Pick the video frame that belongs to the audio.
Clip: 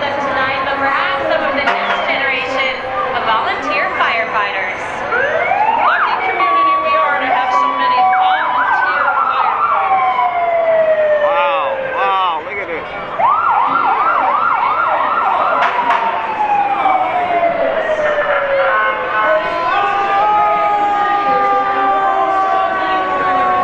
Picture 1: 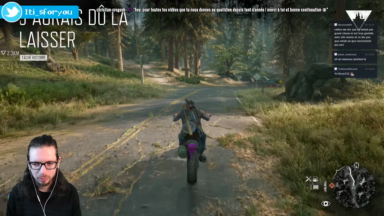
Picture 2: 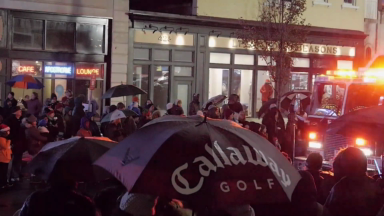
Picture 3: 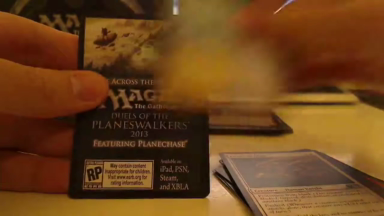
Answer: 2